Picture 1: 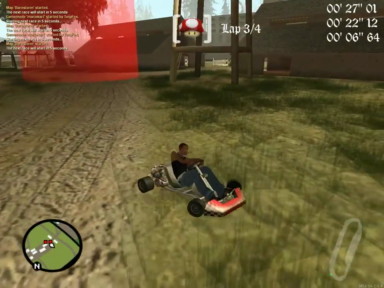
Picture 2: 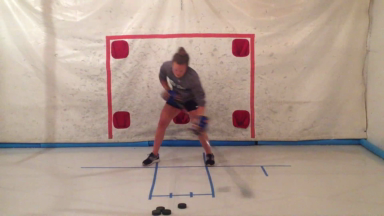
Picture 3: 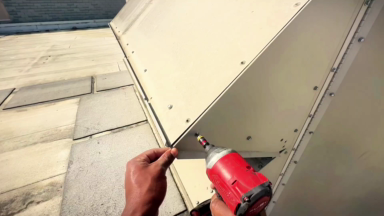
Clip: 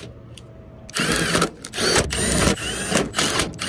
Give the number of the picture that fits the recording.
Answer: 3